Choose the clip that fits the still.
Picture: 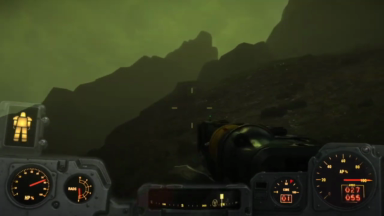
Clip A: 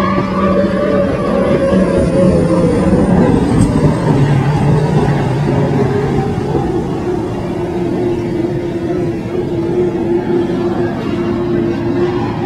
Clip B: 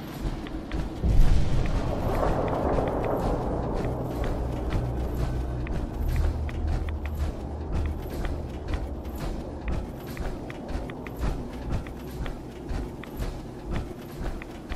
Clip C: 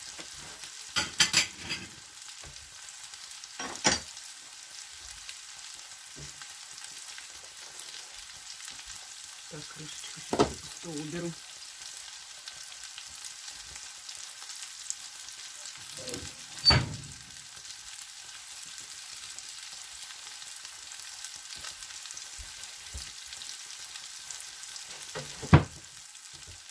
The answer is B